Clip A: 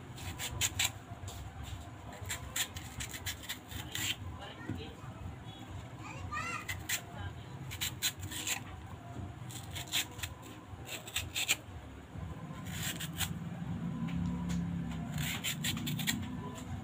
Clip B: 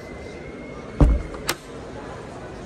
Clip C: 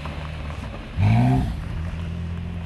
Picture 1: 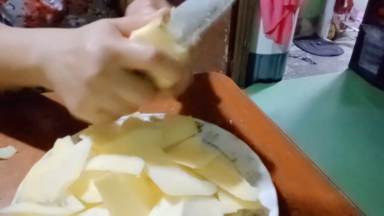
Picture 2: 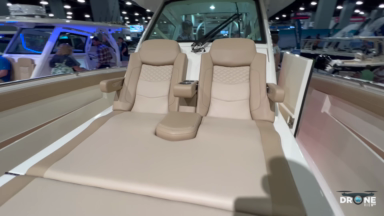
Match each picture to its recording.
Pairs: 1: A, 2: B